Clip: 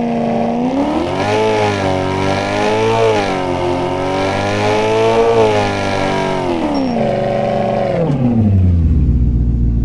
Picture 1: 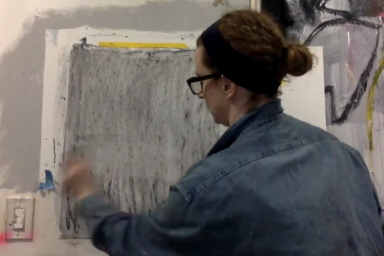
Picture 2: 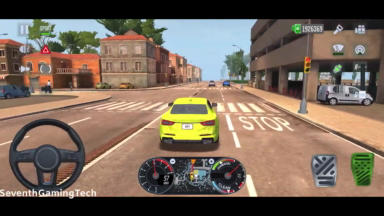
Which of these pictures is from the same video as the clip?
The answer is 2